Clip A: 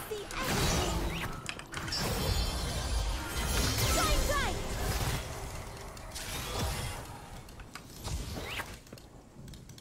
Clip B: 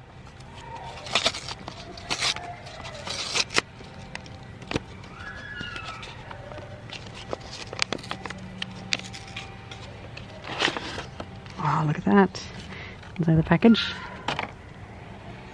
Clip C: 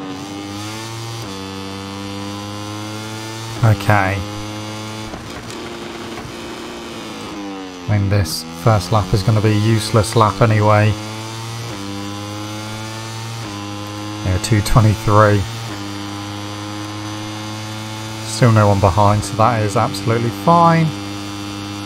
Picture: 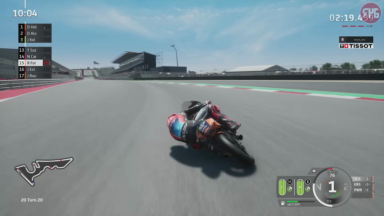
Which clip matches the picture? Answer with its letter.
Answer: C